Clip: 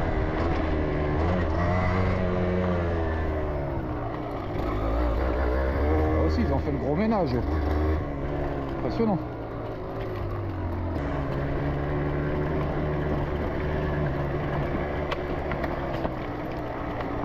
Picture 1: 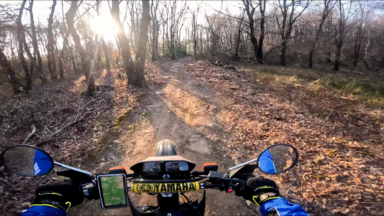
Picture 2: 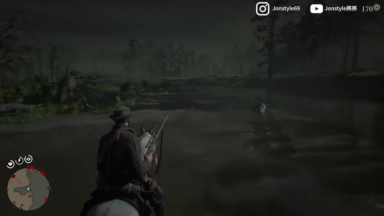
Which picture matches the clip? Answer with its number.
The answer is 1